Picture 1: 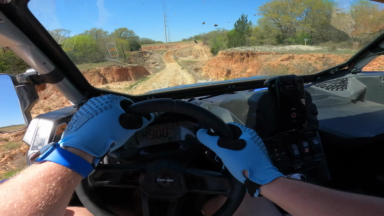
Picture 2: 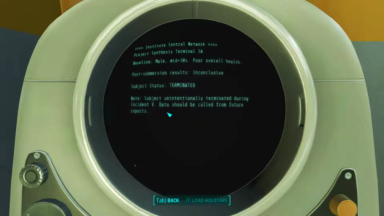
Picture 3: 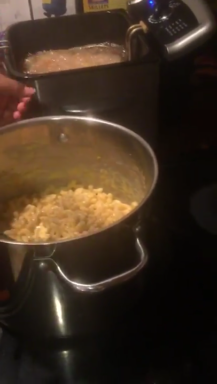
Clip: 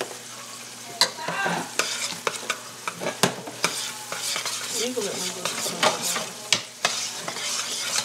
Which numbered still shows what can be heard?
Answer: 3